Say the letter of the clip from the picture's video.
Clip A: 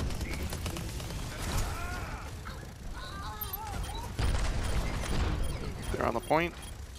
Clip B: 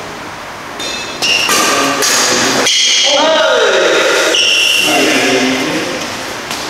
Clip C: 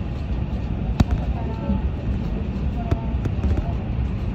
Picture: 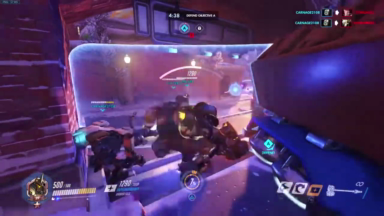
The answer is A